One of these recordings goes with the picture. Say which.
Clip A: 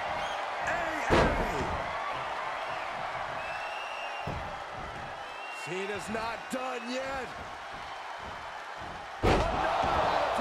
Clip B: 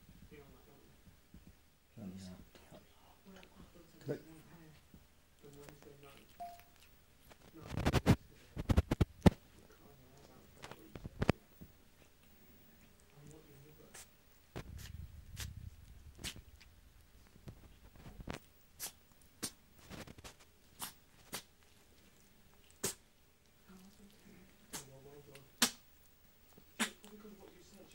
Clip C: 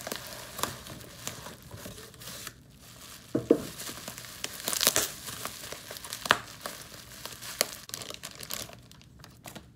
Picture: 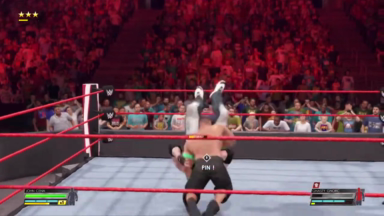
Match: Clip A